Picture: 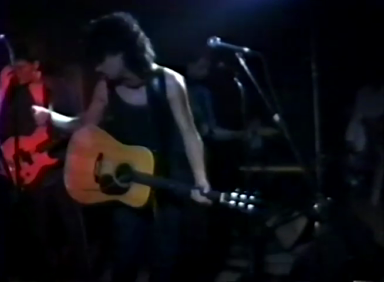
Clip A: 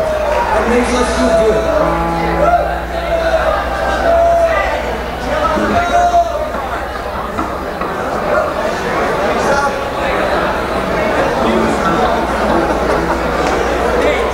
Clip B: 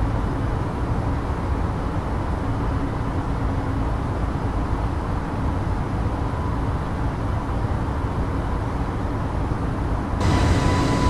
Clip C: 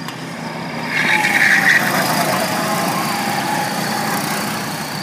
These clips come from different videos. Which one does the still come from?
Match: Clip A